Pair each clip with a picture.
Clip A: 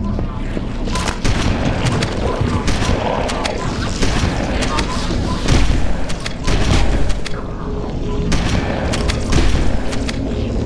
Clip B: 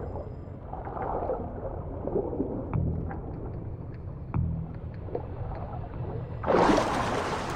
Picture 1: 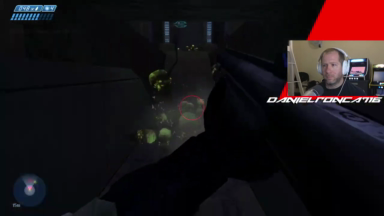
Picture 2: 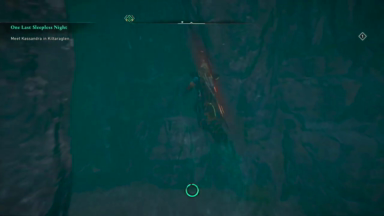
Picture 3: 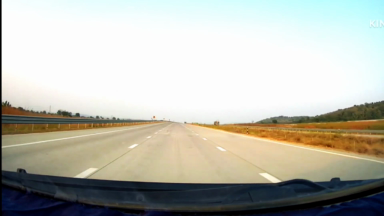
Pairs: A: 1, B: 2